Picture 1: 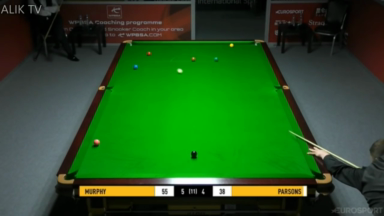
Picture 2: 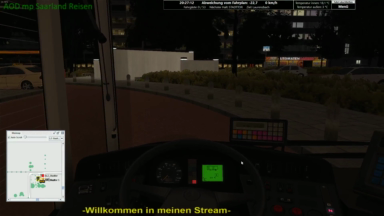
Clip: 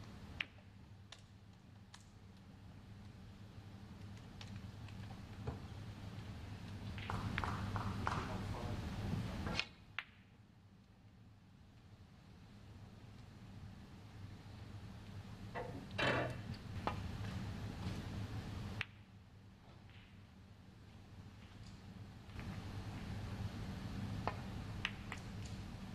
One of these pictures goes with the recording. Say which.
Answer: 1